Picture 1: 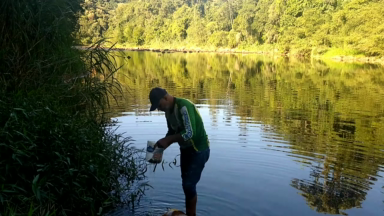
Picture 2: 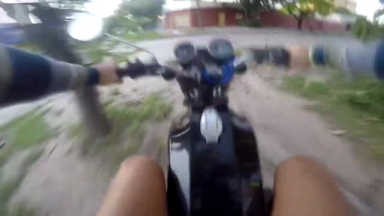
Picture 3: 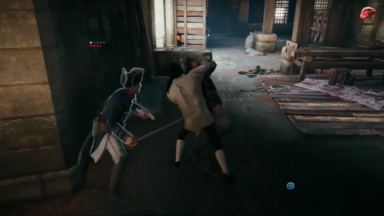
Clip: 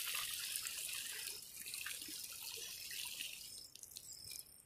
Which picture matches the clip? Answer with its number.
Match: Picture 1